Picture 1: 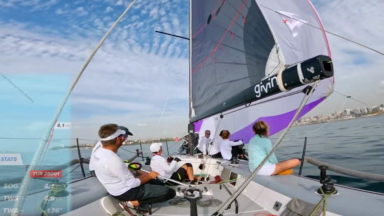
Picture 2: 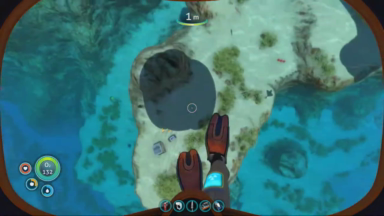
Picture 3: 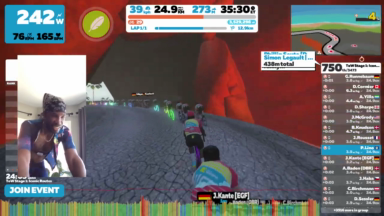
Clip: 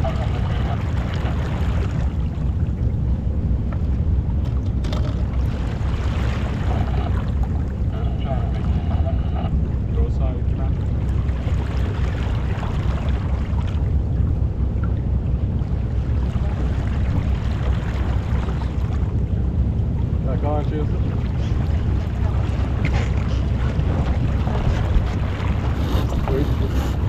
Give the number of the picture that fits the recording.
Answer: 1